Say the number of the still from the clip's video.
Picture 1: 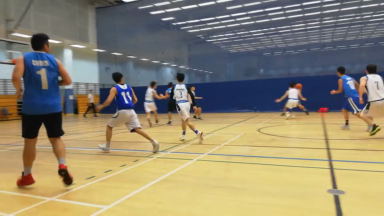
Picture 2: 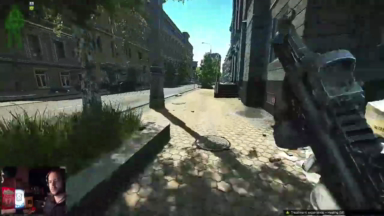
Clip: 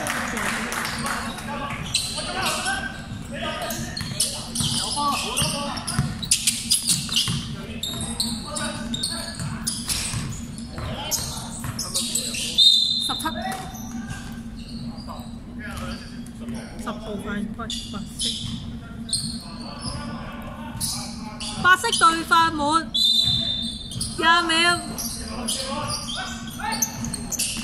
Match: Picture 1